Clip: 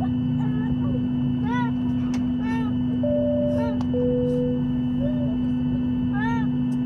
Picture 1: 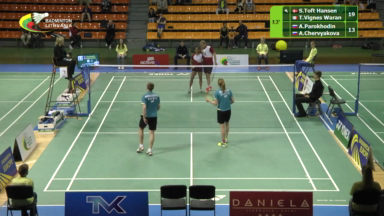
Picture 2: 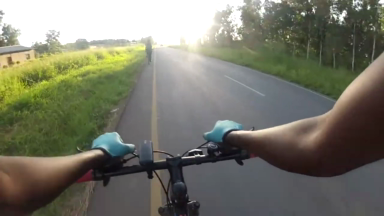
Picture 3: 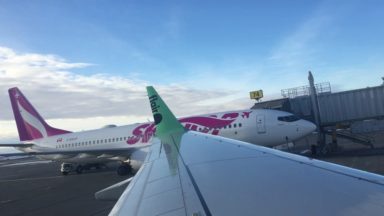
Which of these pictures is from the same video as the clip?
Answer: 3